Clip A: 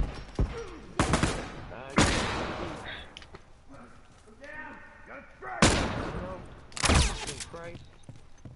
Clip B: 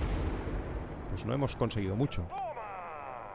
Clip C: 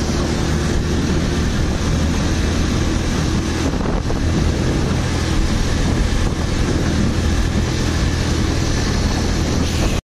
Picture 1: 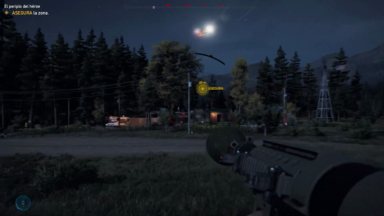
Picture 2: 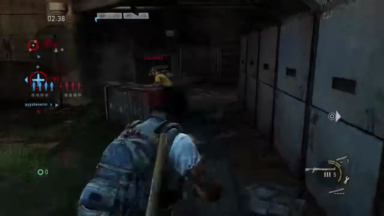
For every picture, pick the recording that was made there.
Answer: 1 B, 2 A